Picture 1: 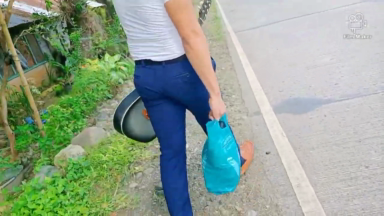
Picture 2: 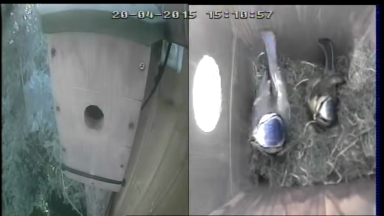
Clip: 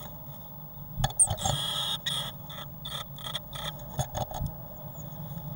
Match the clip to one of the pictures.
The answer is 2